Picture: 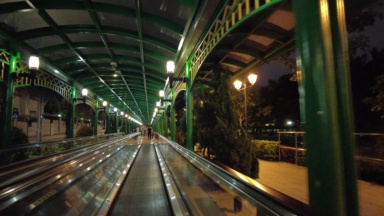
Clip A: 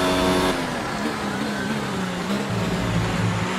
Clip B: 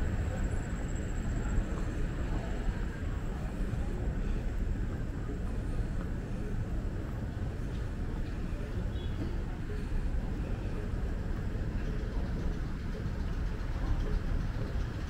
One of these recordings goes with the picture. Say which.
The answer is B